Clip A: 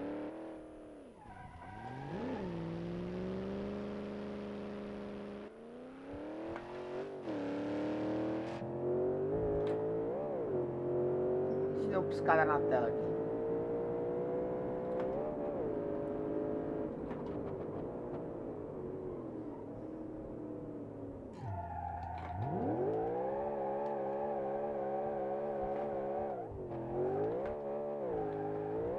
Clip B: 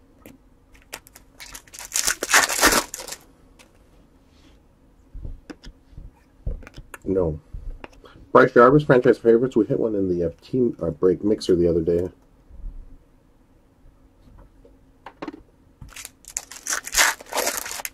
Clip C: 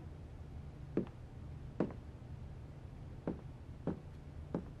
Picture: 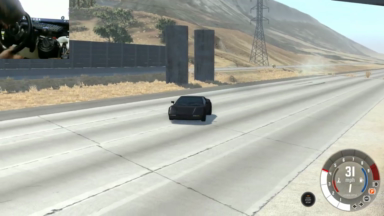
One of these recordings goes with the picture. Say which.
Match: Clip A